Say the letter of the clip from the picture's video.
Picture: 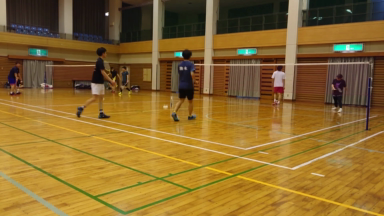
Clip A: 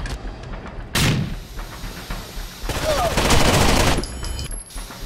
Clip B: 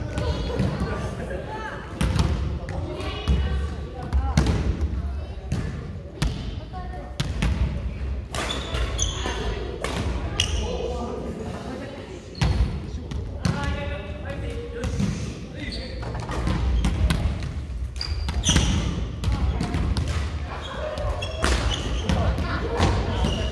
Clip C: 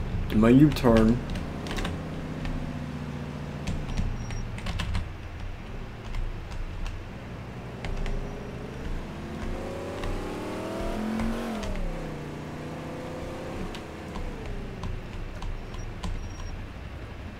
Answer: B